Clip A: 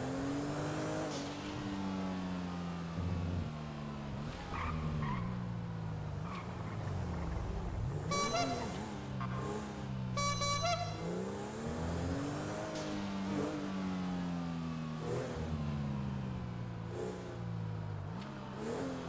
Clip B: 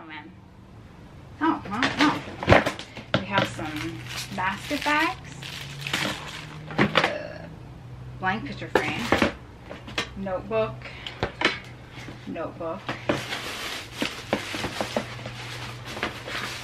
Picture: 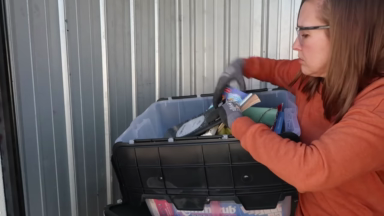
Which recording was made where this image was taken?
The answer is B